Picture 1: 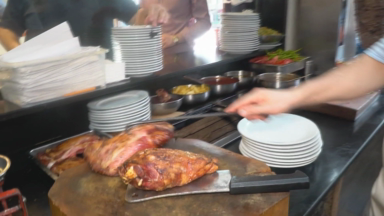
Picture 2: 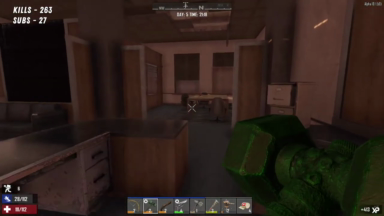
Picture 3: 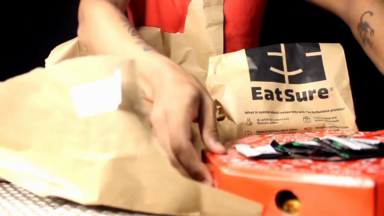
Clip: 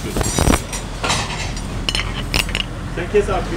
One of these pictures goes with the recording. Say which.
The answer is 1